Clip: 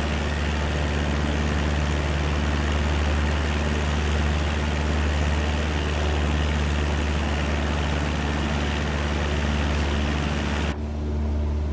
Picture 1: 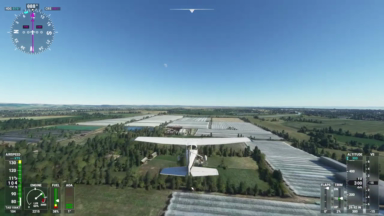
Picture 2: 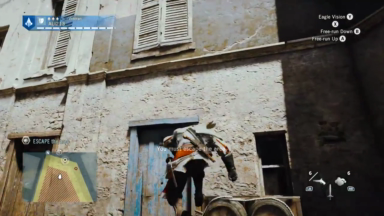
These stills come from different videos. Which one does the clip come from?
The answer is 1